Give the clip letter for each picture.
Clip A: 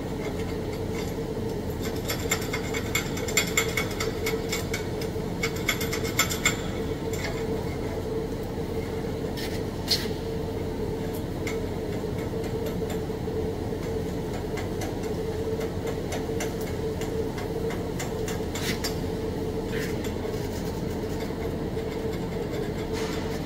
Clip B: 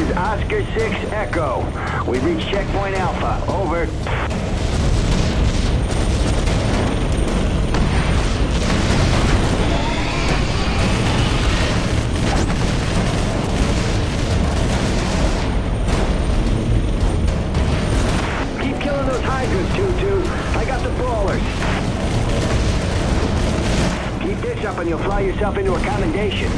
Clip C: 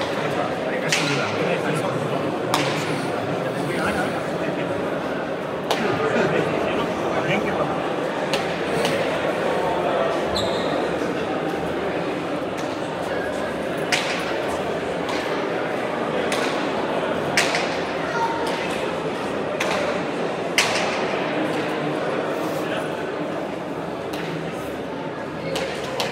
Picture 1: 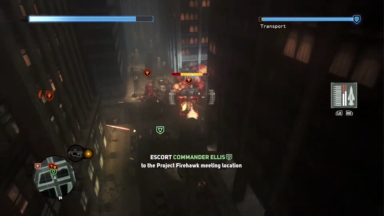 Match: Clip B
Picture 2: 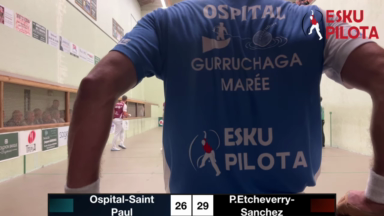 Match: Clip C